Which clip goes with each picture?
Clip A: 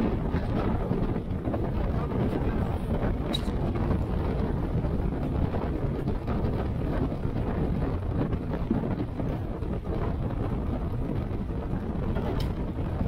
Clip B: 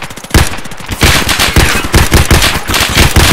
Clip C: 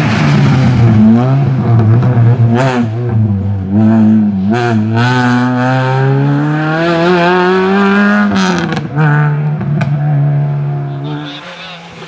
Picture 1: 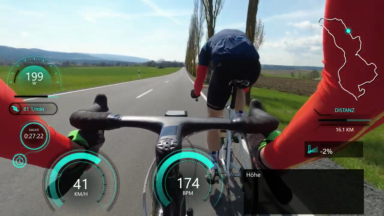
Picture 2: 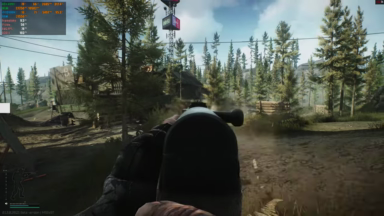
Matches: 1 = A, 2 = B